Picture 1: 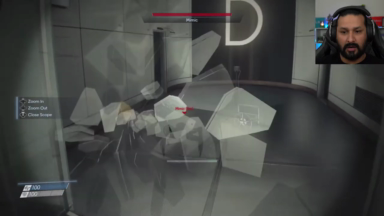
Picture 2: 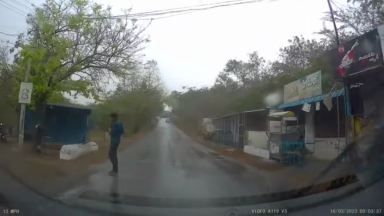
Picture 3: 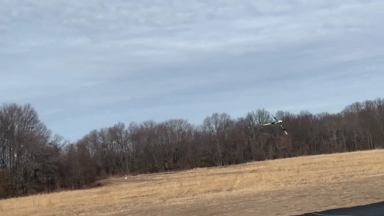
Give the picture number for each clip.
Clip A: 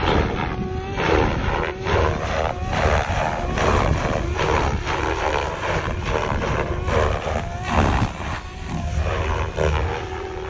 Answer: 3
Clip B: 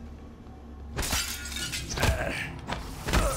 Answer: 1